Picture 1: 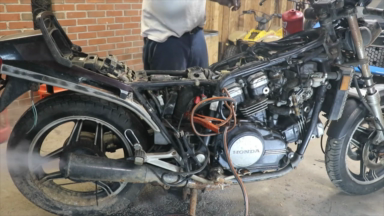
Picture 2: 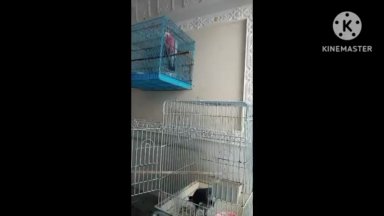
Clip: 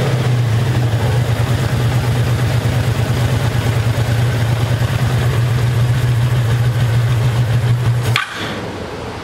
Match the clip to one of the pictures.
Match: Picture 1